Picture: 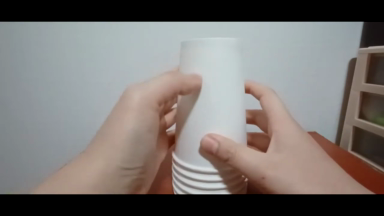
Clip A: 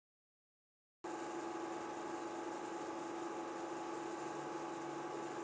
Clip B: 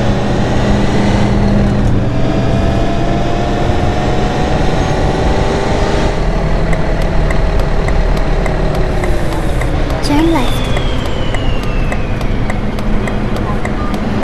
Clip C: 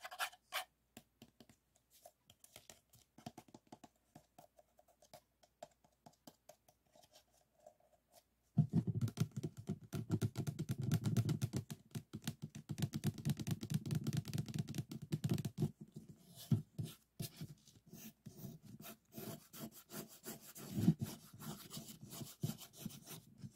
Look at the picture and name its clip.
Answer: C